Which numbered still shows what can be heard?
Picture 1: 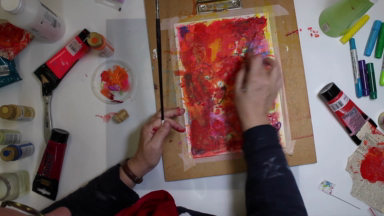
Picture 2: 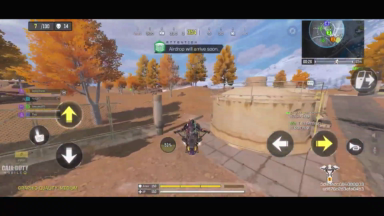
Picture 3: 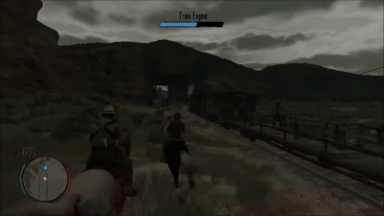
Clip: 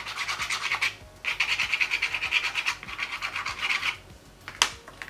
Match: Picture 1